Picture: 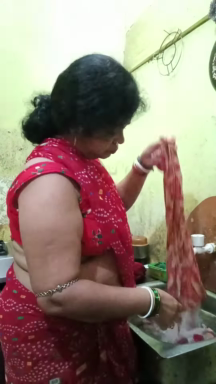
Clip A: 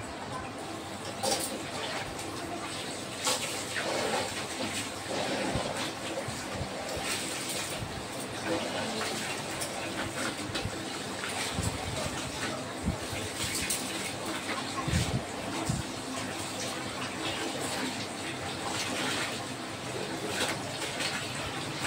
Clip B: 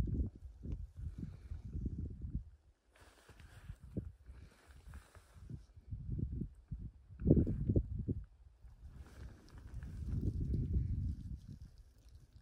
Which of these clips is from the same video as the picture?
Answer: A